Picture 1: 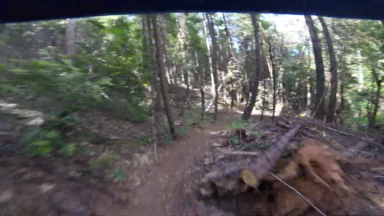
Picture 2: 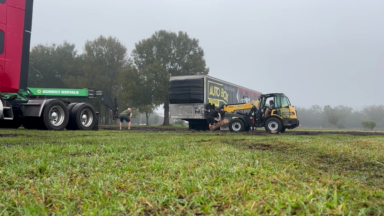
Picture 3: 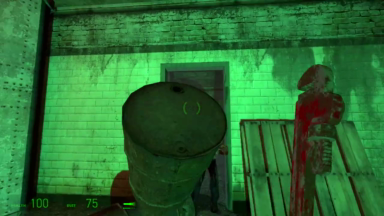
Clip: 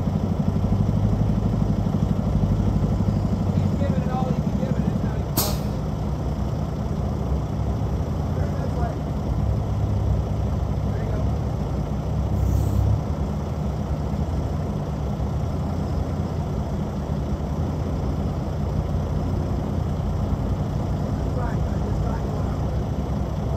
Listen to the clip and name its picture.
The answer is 2